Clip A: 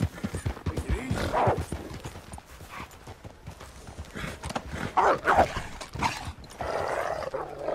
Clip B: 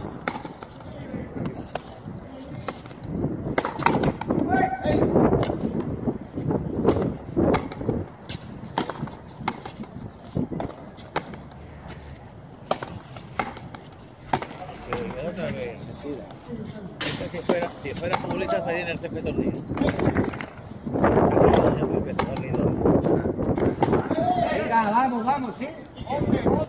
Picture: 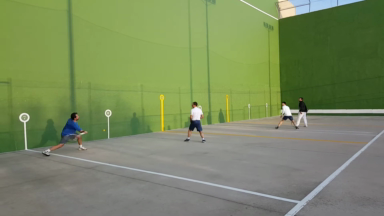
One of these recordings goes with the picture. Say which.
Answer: B